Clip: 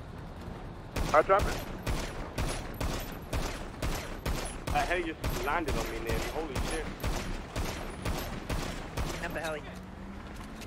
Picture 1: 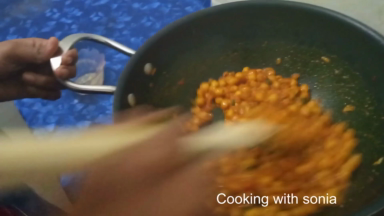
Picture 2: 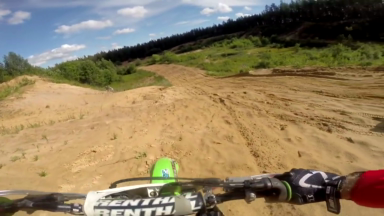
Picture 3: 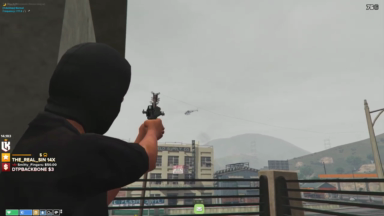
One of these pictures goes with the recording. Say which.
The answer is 3